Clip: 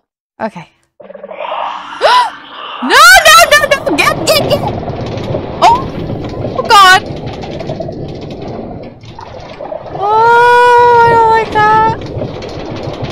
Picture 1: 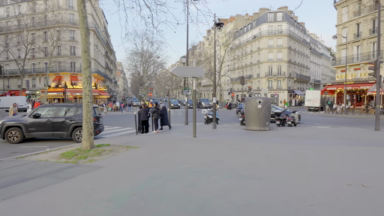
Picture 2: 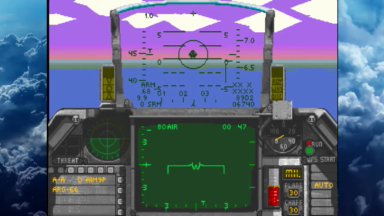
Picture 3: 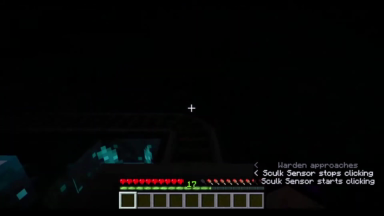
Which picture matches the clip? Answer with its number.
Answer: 3